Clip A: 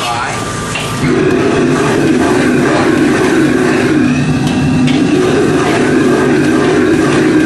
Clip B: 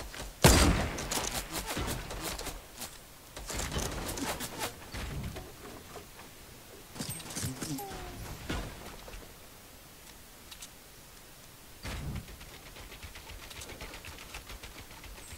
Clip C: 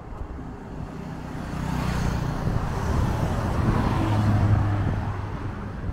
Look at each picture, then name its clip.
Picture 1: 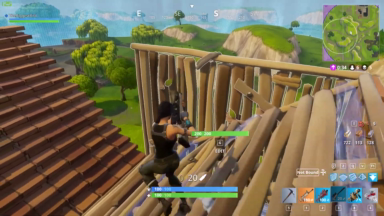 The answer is B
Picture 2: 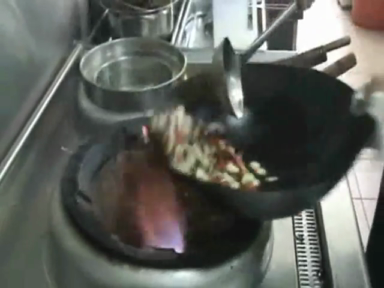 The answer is A